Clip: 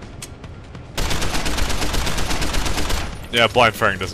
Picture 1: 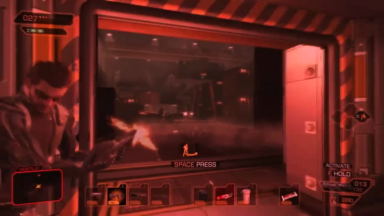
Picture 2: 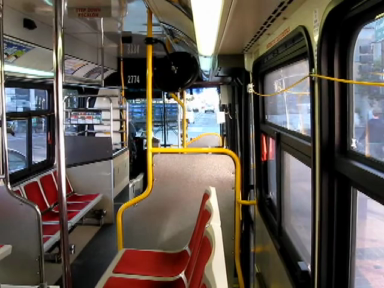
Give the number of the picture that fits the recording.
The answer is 1